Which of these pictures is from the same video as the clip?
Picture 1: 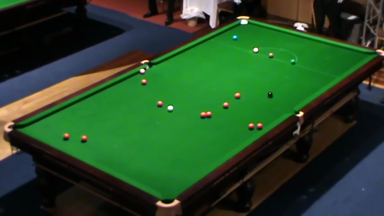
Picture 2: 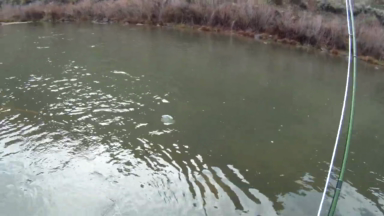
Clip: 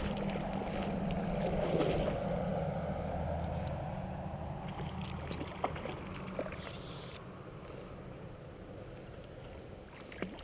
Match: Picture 2